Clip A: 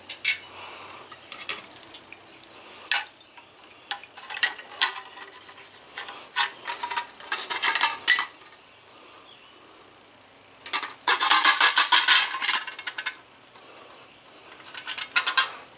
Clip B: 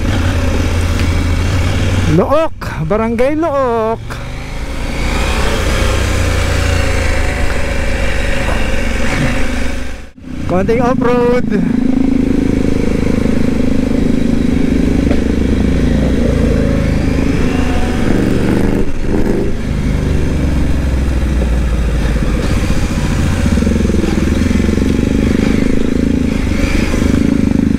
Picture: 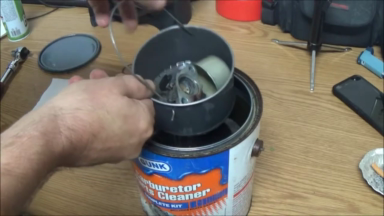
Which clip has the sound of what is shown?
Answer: A